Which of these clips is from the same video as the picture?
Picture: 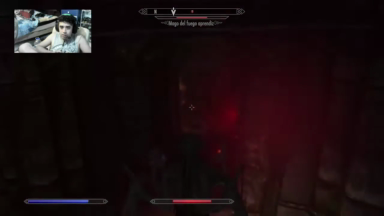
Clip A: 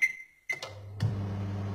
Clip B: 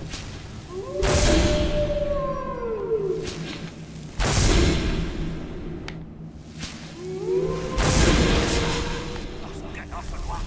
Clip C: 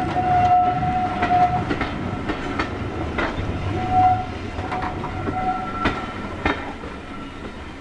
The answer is B